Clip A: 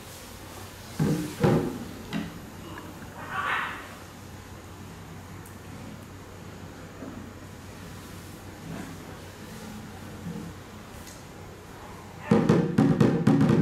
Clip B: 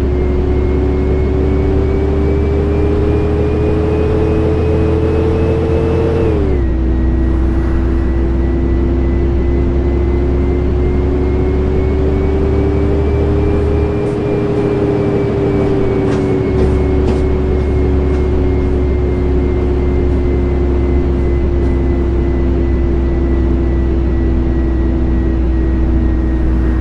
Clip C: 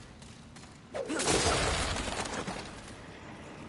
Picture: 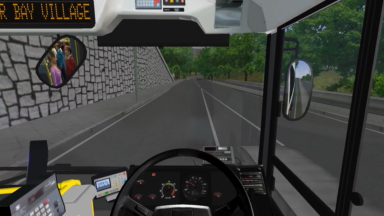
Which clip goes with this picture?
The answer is B